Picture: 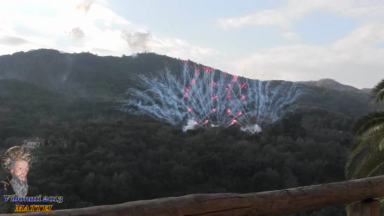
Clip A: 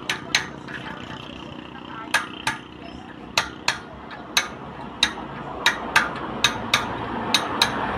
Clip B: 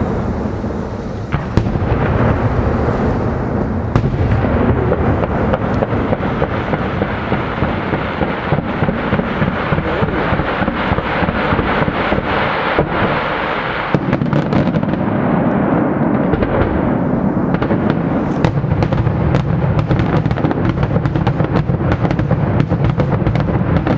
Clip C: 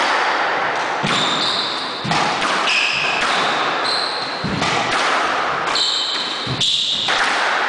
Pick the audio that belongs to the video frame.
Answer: B